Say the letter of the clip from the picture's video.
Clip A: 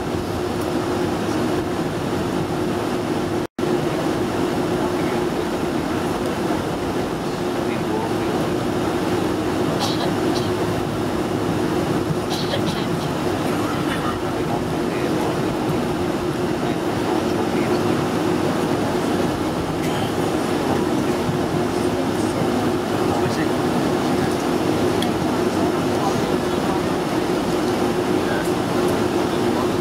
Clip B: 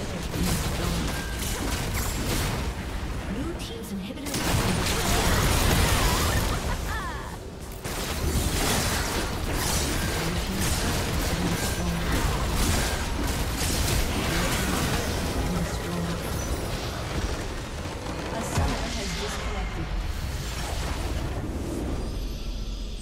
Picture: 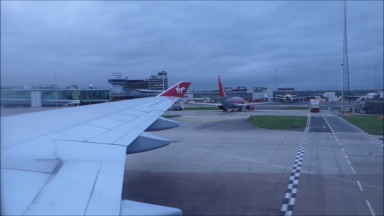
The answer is A